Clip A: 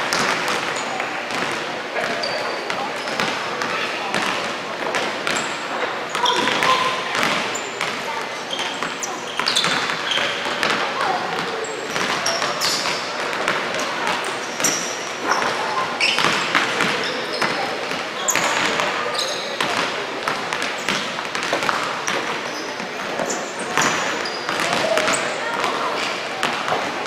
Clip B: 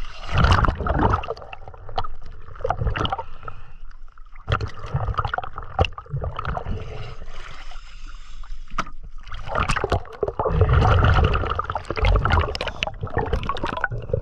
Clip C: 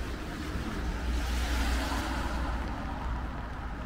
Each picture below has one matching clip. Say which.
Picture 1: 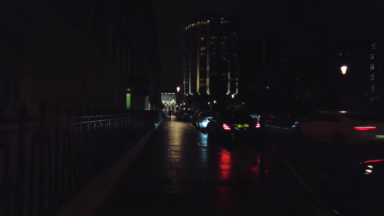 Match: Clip C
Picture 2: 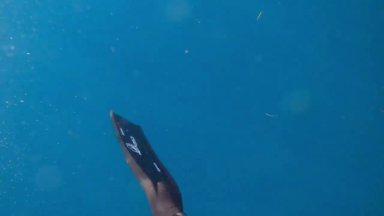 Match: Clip B